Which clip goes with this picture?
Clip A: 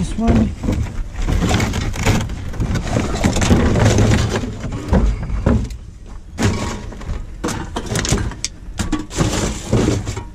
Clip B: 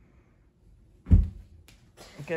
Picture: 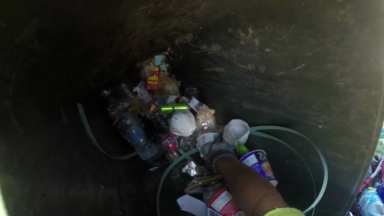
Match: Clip A